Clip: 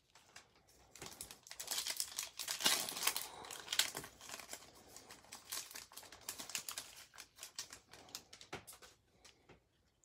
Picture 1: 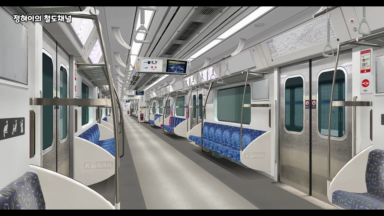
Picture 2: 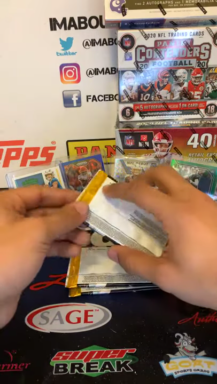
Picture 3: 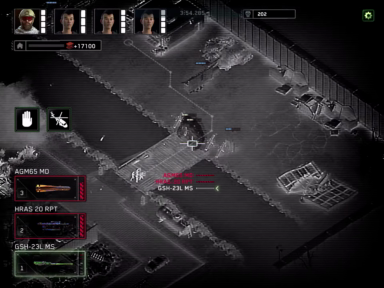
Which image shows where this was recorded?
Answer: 2